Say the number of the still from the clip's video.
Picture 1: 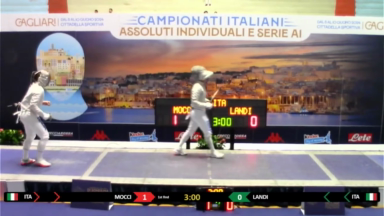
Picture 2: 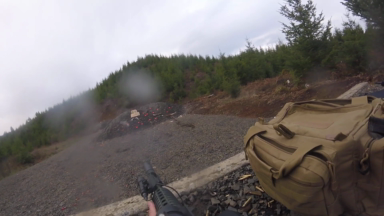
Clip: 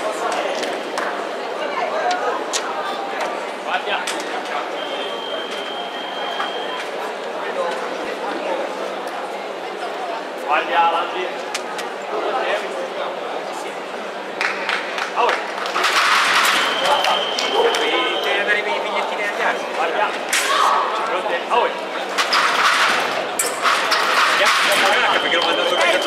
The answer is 1